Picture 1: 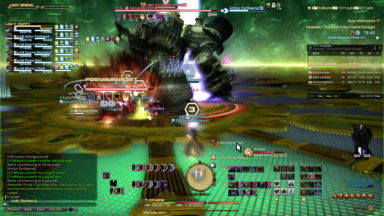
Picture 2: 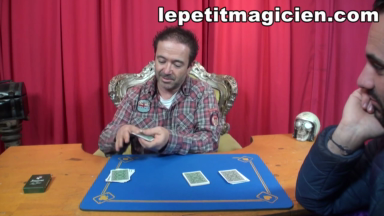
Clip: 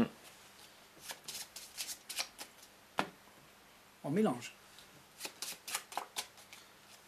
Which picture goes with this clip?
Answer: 2